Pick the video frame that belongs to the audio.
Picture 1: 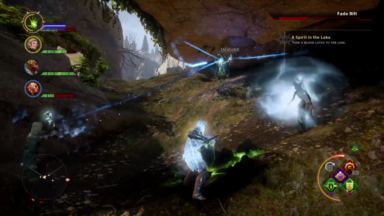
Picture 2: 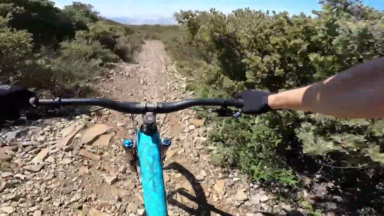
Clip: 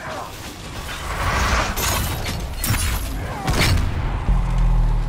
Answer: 1